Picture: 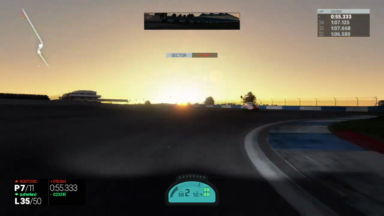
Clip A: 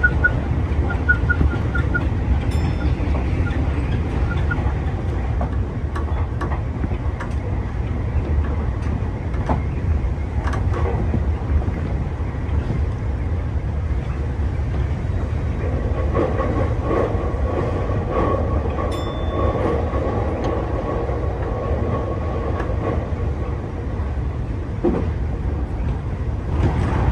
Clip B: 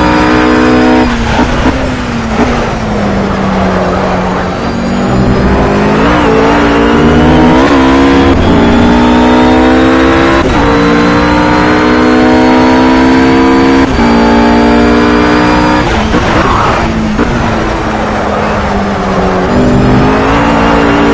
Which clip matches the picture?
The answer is B